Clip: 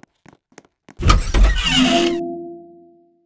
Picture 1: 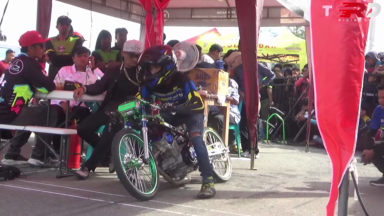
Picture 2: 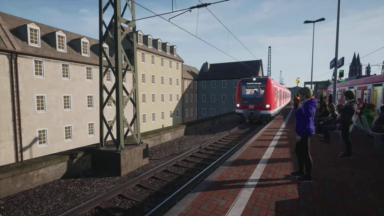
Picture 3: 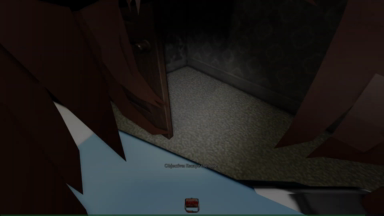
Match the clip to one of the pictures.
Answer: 3